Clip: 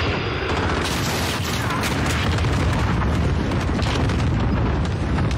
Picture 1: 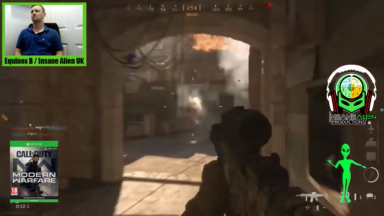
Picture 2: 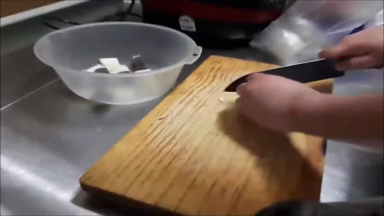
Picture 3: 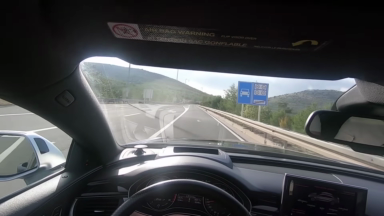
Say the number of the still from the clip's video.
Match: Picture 1